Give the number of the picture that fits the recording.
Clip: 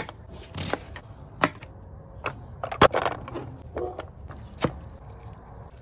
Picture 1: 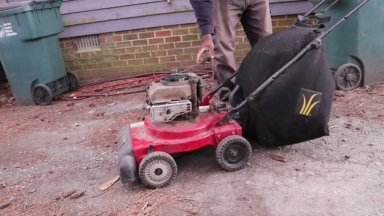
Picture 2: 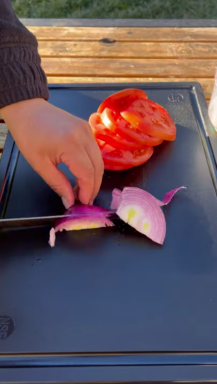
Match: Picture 2